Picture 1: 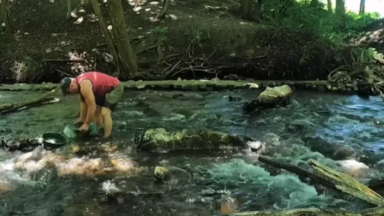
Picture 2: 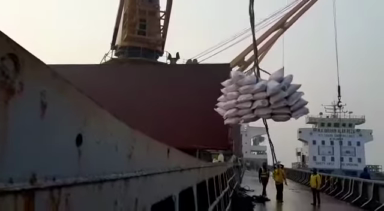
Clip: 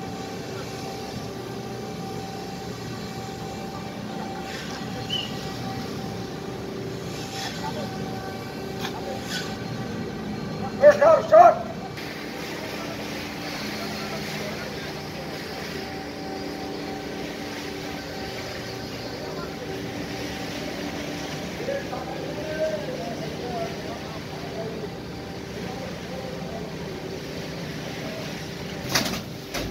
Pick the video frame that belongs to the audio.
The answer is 2